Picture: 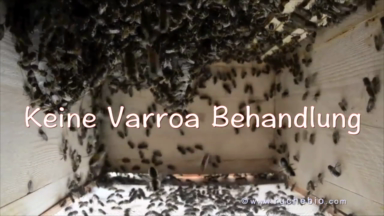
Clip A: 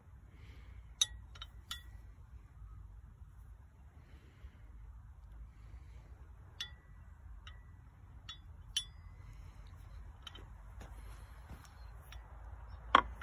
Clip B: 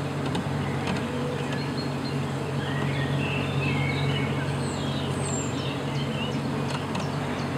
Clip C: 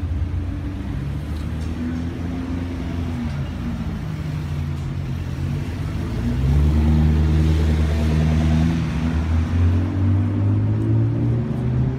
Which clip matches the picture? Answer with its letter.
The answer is B